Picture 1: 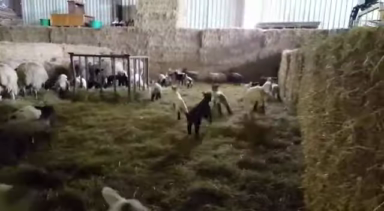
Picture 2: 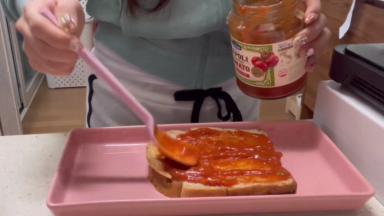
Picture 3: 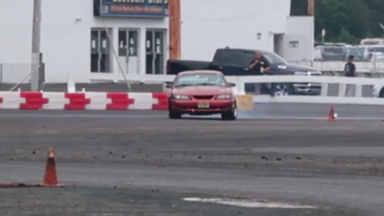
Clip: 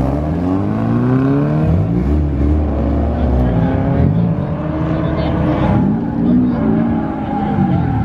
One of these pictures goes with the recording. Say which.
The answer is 3